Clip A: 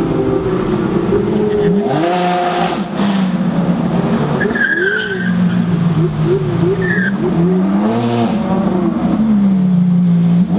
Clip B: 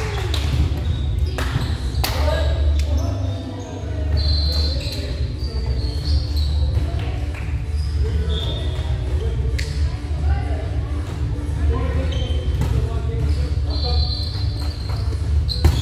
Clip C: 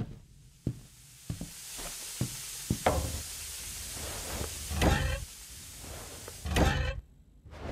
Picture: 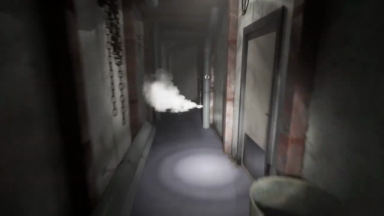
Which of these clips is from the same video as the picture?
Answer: C